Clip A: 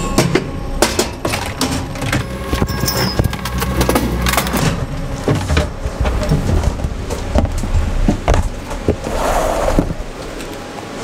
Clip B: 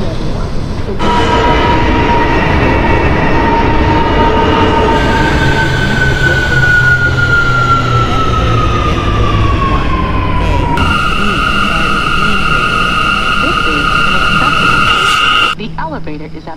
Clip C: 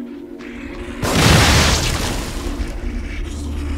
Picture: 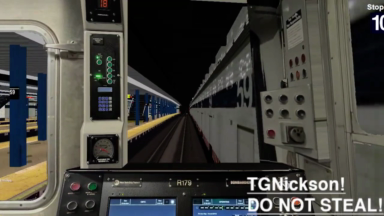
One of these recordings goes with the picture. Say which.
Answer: B